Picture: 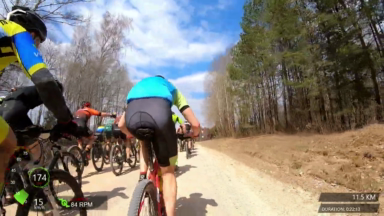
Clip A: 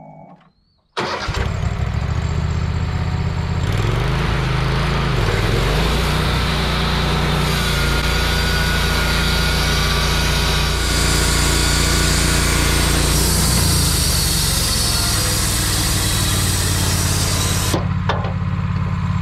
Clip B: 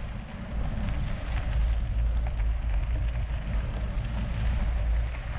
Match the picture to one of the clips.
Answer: B